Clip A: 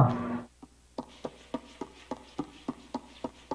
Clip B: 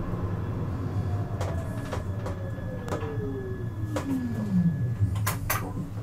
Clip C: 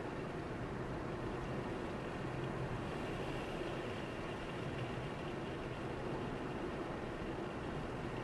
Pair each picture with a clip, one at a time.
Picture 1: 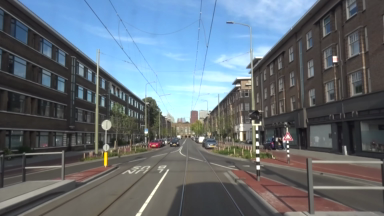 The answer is B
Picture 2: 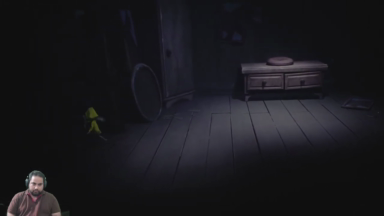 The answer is A